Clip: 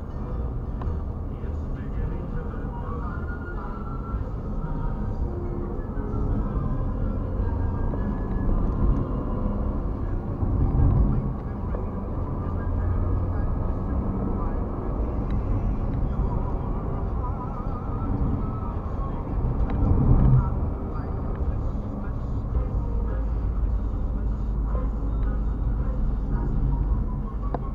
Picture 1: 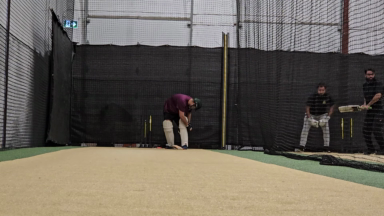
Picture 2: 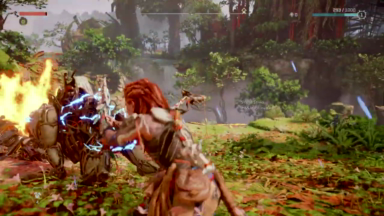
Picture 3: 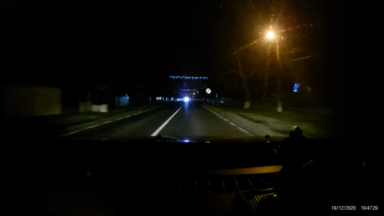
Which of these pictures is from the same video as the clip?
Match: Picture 3